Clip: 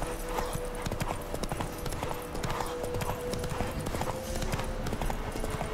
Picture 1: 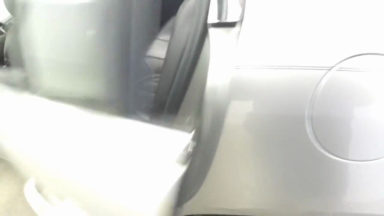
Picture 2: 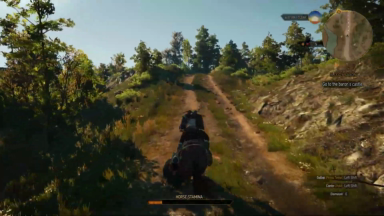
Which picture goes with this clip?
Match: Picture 2